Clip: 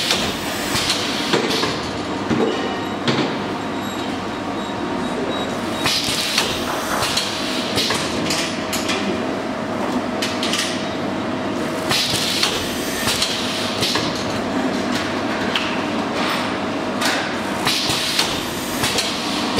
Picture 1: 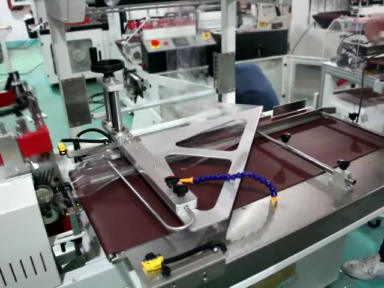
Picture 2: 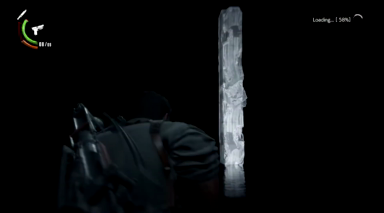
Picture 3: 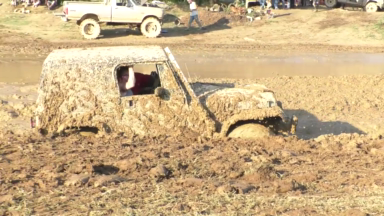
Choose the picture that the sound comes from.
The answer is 1